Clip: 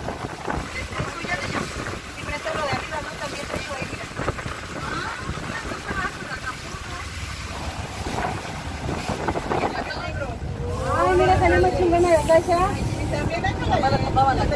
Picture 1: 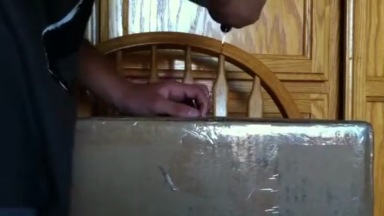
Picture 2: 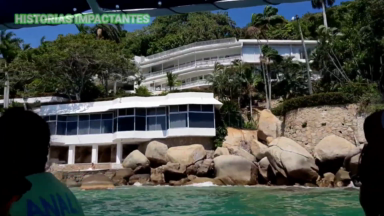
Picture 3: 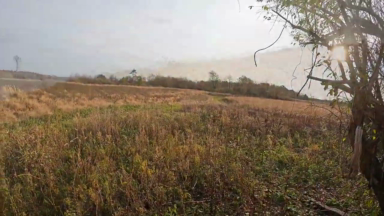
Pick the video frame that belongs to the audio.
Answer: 2